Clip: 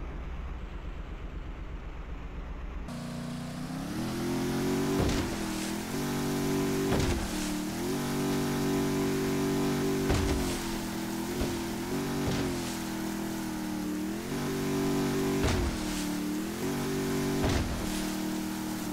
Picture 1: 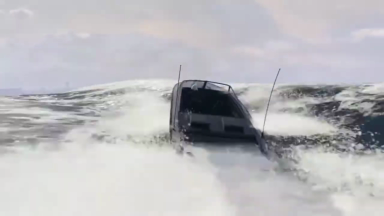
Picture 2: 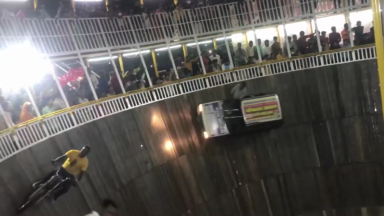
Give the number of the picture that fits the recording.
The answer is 1